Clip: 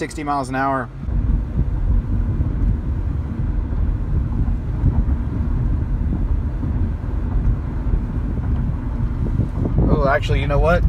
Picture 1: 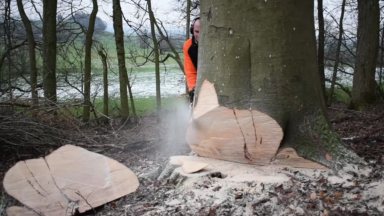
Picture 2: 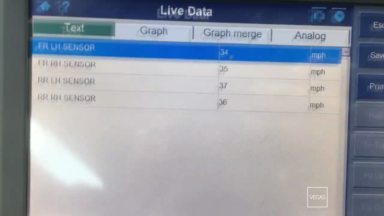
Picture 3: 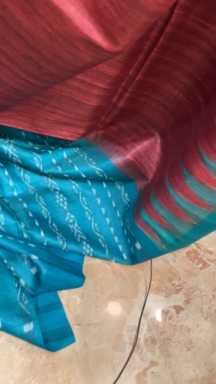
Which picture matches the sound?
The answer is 2